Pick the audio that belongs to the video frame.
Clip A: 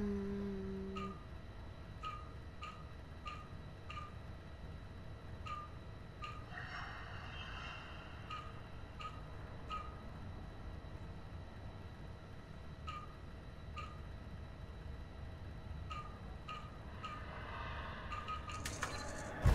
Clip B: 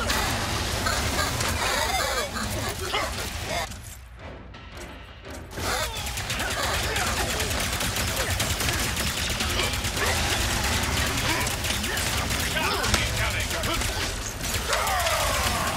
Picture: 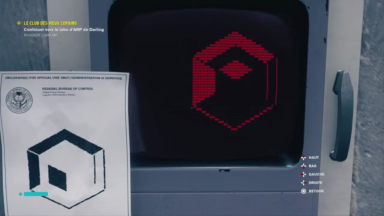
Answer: A